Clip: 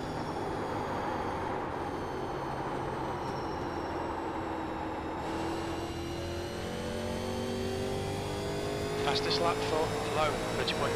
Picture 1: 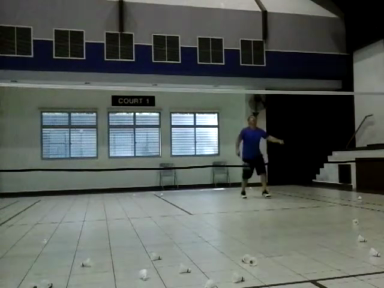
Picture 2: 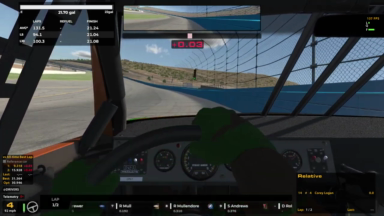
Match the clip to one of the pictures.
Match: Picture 2